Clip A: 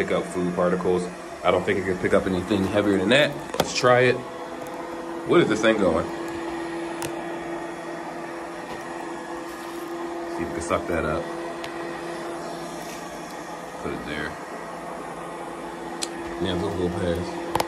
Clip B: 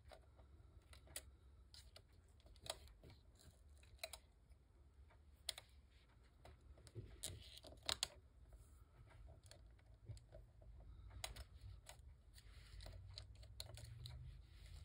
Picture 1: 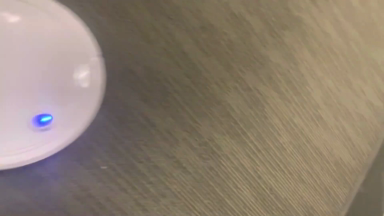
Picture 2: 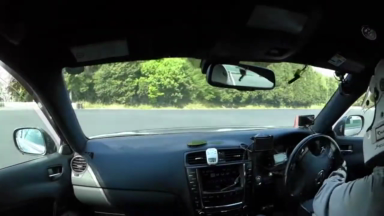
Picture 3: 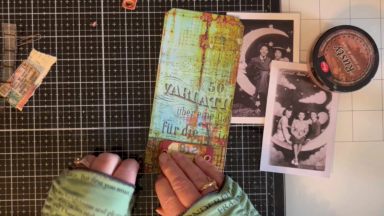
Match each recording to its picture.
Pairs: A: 1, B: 3